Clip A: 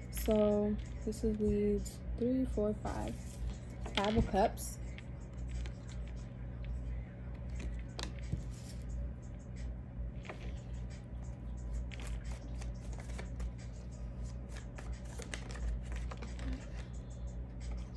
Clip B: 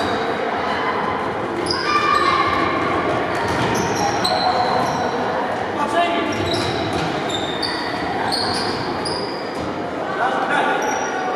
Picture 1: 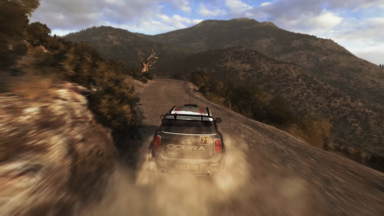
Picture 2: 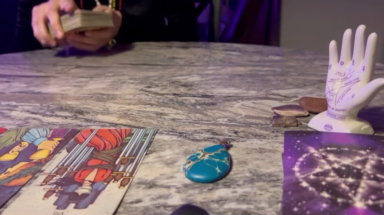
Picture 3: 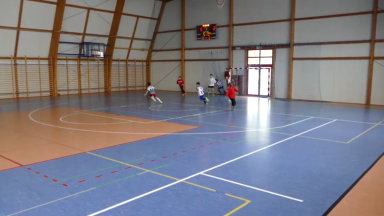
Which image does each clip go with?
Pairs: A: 2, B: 3